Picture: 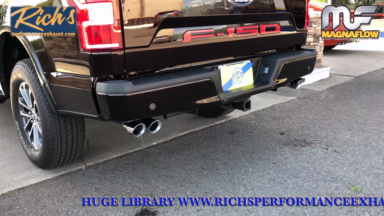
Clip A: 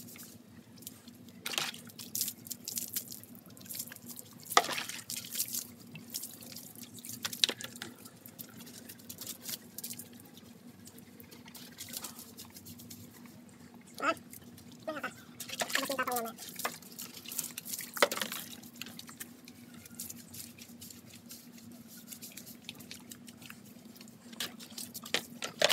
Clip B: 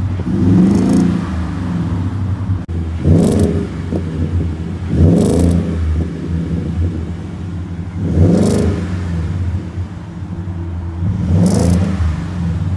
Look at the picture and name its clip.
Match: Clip B